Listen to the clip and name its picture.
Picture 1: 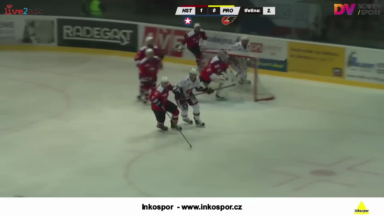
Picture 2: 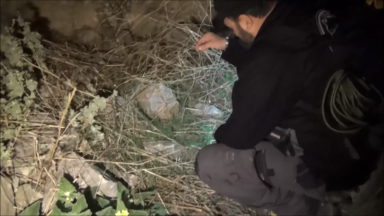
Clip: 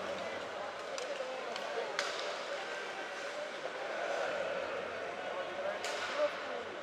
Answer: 1